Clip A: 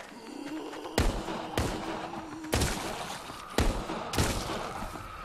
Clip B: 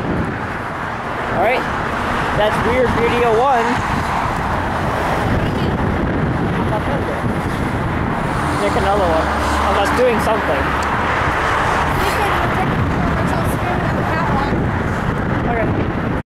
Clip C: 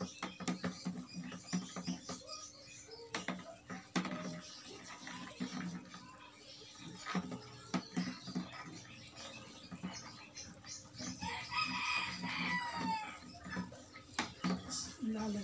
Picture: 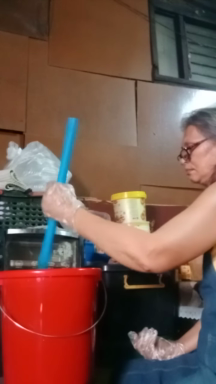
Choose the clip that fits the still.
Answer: C